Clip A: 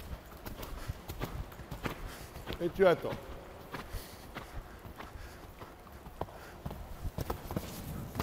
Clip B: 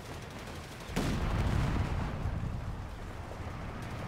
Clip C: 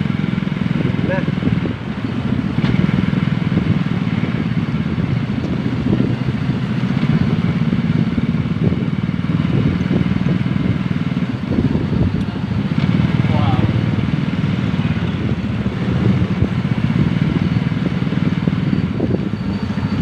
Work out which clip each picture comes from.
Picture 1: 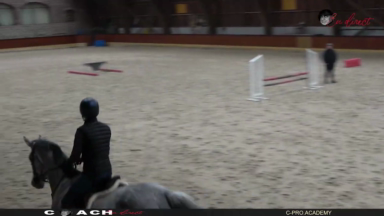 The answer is A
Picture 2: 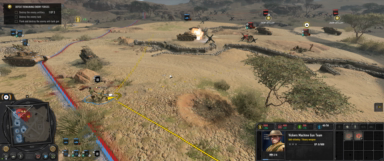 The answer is B